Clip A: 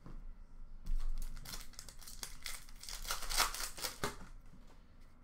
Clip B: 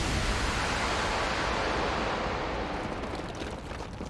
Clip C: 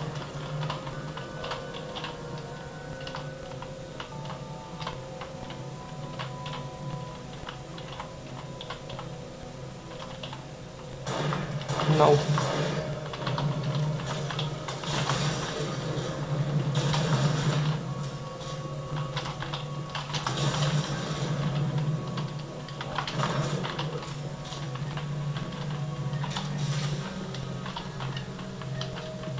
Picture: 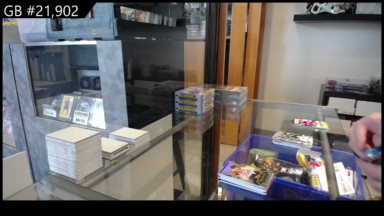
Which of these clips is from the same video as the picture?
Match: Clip A